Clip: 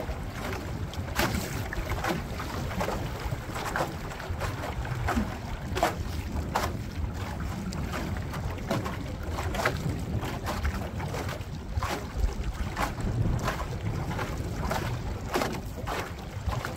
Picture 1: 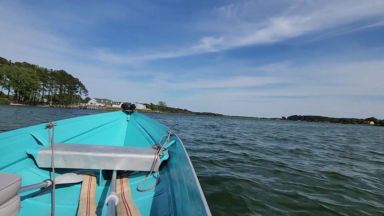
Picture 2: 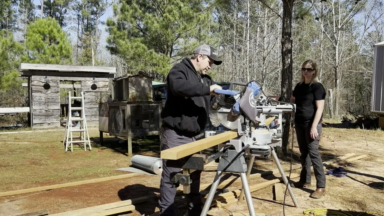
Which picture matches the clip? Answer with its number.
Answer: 1